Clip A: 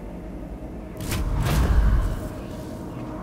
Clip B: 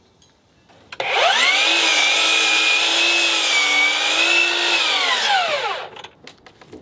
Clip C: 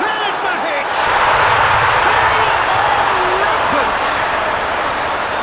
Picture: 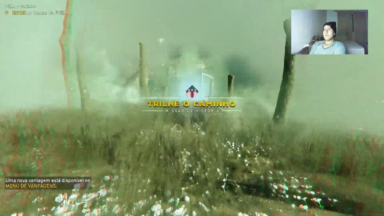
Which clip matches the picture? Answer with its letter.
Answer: A